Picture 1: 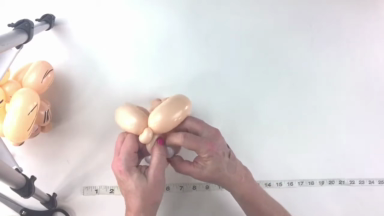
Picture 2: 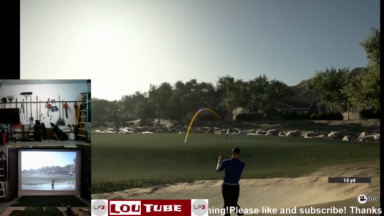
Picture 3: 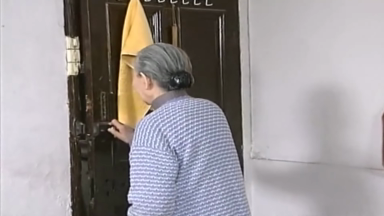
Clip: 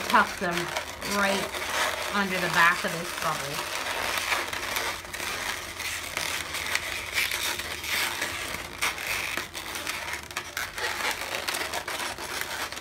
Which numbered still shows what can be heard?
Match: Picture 1